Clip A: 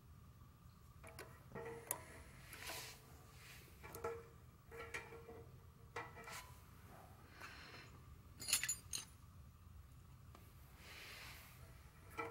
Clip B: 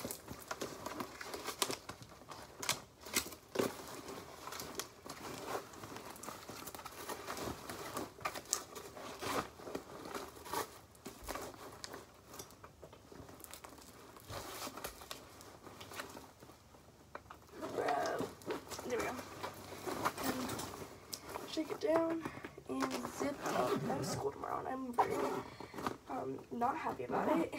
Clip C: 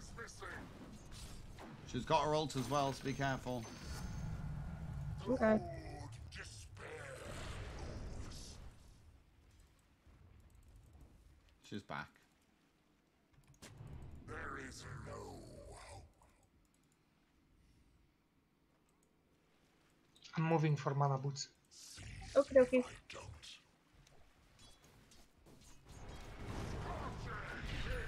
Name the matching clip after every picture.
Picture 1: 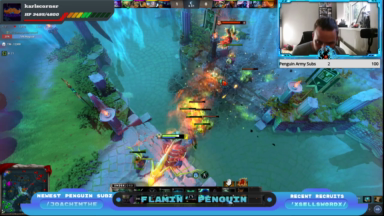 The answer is C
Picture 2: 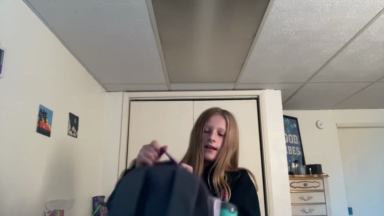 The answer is B